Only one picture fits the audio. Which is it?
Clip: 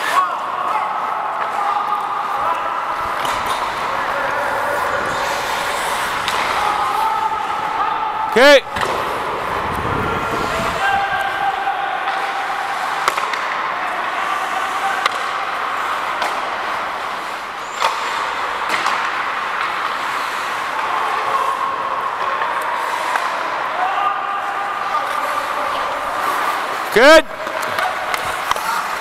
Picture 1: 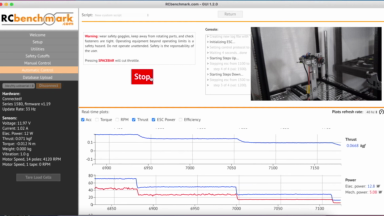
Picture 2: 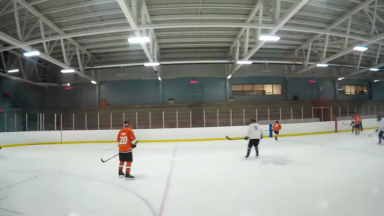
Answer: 2